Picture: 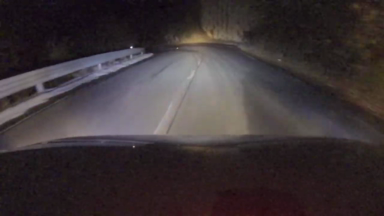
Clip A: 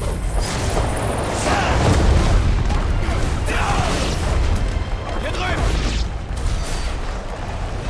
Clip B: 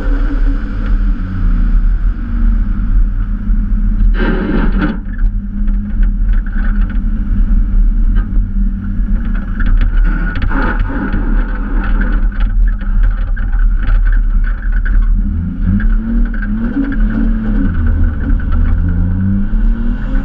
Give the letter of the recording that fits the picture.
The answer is B